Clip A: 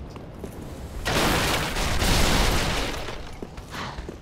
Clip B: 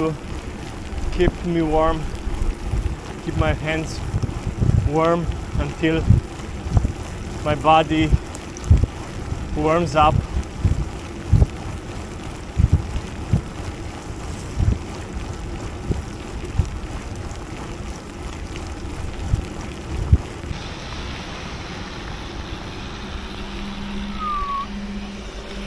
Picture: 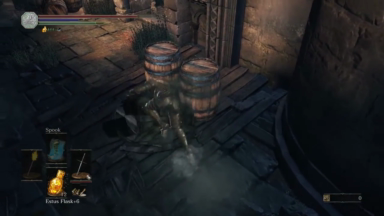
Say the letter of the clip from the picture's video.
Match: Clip A